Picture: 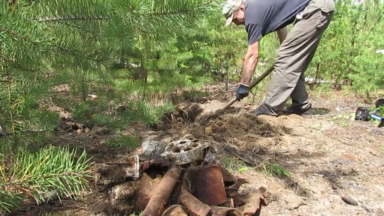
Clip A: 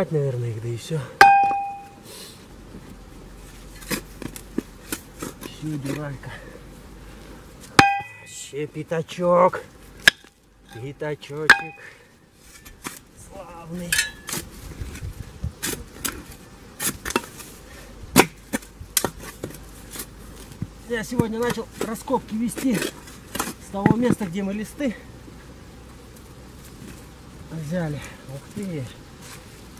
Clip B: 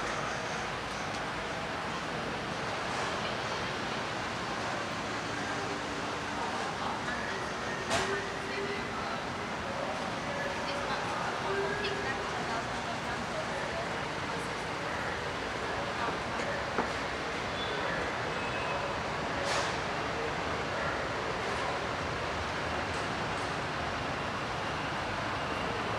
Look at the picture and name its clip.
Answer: A